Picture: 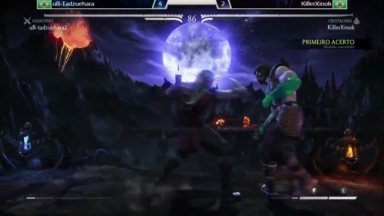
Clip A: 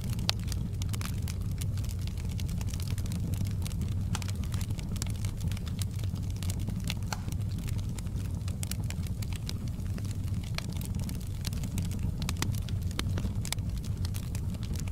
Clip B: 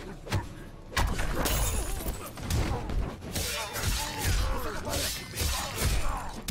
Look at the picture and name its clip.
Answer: B